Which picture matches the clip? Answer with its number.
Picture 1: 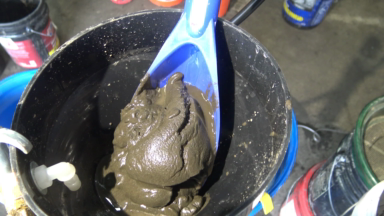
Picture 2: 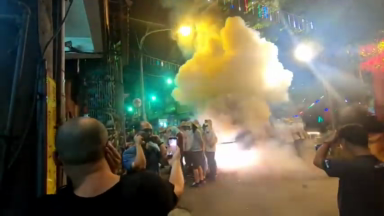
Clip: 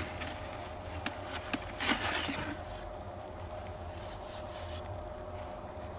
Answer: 1